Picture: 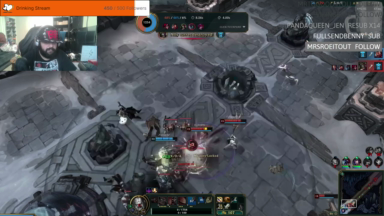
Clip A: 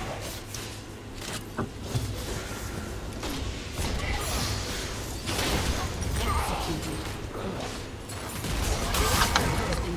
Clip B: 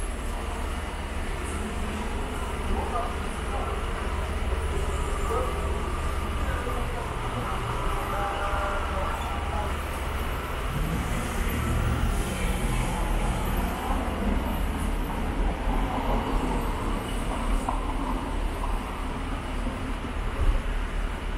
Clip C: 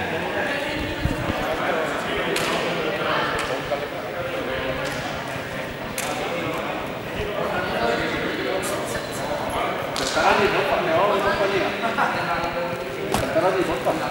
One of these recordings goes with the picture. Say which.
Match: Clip A